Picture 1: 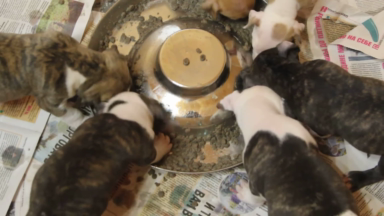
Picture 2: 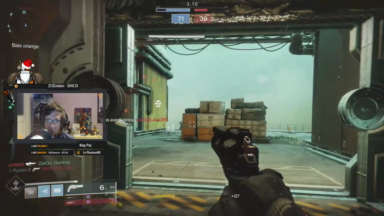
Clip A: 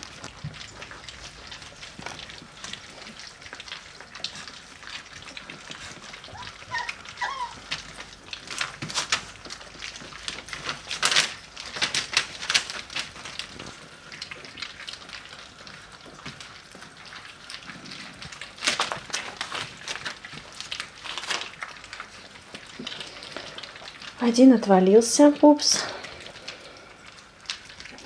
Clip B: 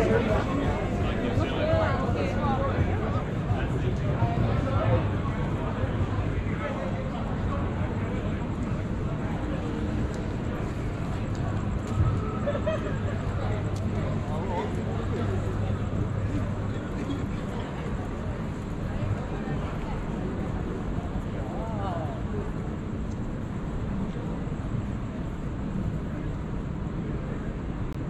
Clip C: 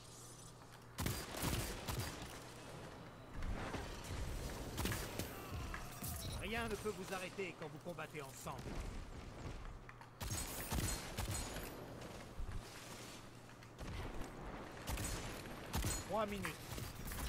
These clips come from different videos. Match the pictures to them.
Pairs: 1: A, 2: C